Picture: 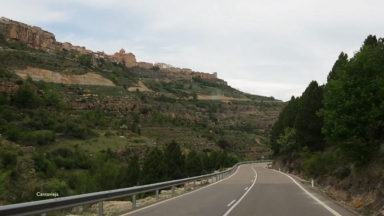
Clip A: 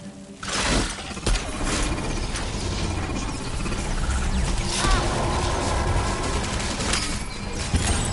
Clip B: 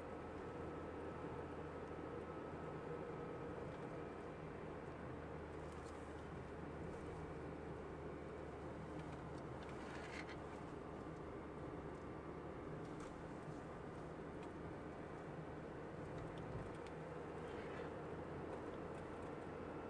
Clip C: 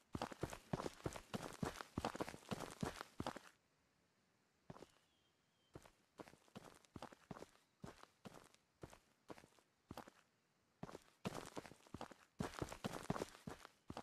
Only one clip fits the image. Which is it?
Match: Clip B